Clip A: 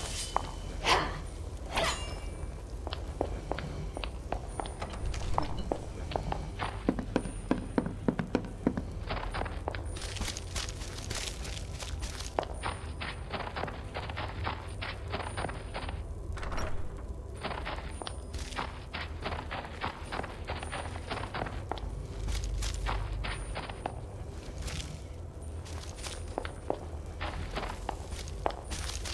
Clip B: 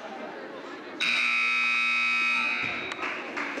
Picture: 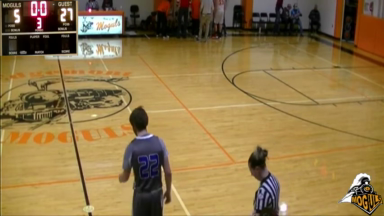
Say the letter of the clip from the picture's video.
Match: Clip B